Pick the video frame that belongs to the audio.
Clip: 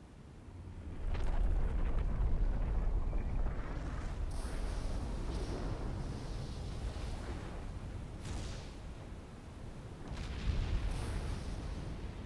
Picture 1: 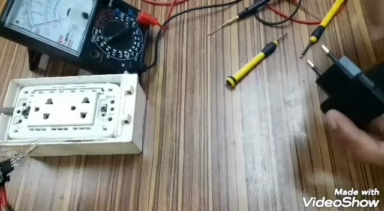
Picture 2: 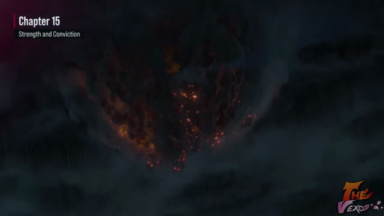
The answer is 2